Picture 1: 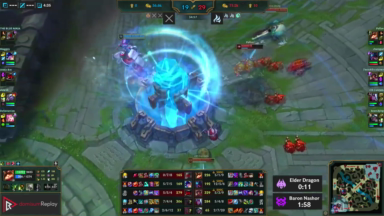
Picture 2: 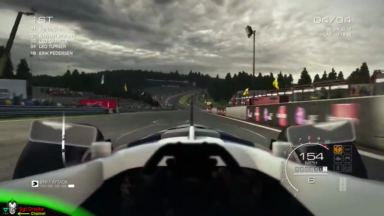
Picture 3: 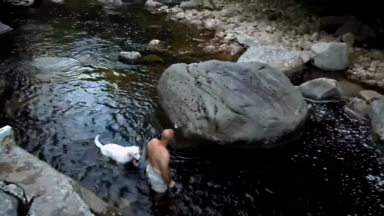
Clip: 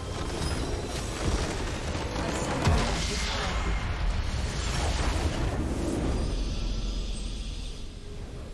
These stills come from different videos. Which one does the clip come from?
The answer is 1